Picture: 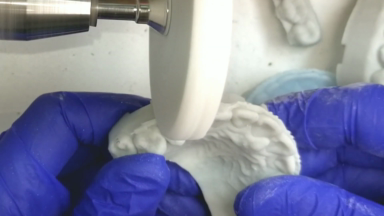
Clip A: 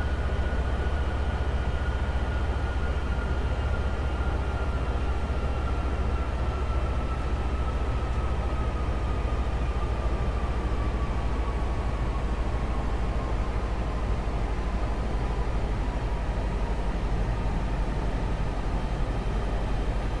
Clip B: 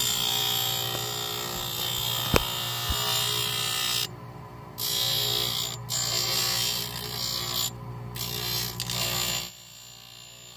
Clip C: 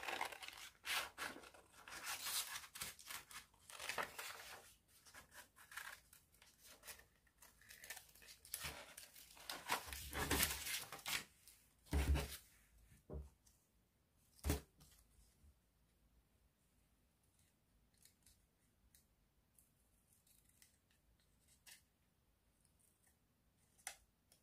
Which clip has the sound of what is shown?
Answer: B